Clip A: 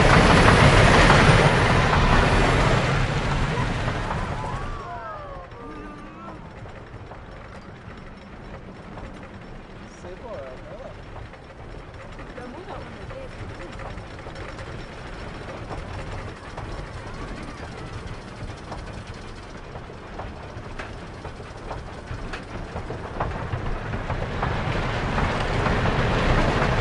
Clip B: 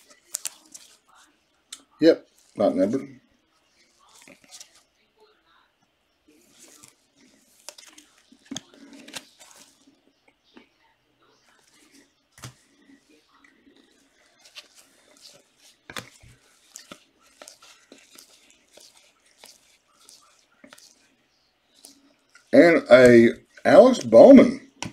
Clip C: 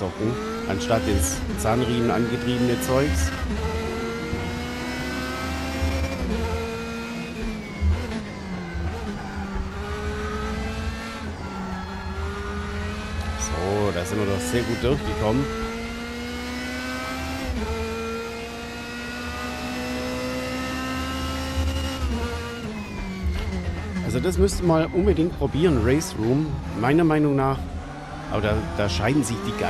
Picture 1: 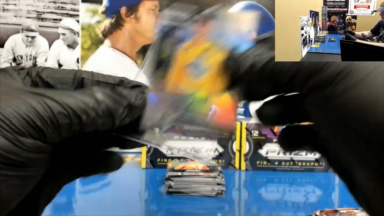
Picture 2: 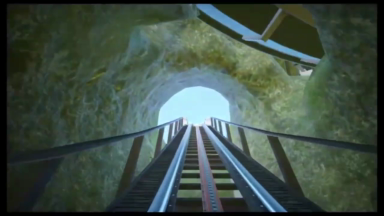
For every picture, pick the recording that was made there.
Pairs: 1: B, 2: A